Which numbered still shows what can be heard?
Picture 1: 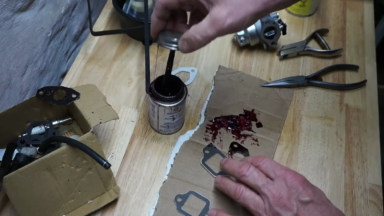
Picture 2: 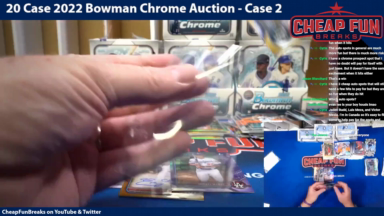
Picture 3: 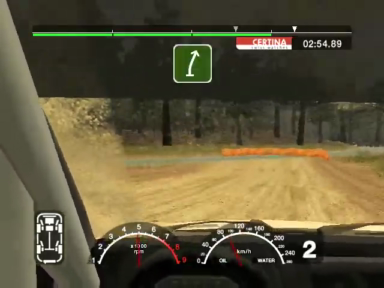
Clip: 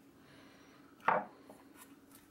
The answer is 1